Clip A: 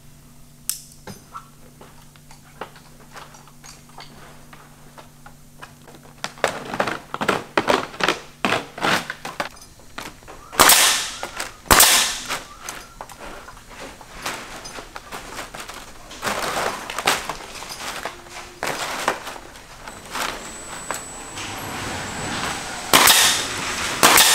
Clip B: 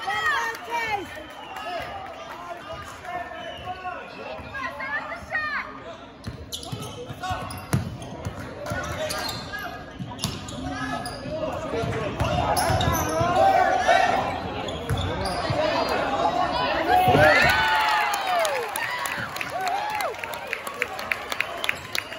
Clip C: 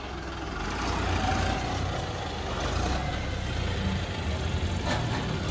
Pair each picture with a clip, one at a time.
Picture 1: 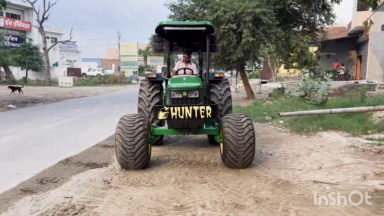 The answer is C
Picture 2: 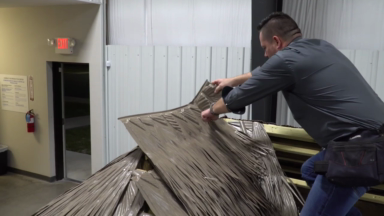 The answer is A